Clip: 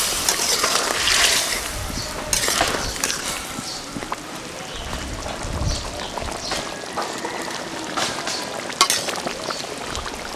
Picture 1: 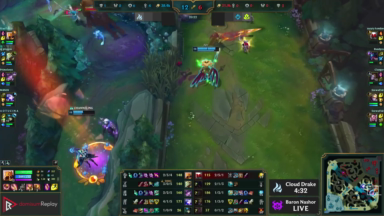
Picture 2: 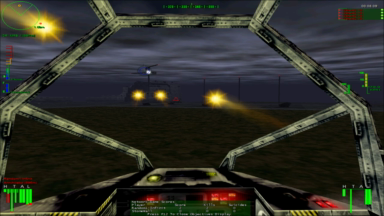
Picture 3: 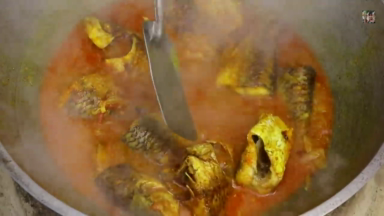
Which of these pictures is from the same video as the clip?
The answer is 3